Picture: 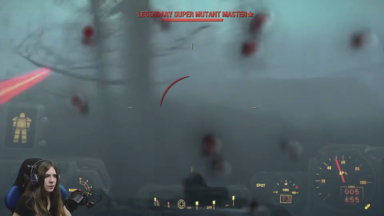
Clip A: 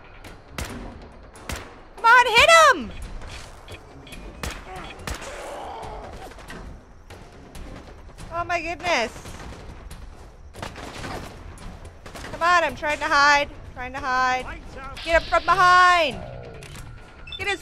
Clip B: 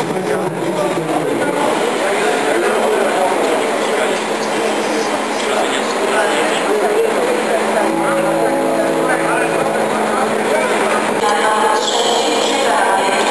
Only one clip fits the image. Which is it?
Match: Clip A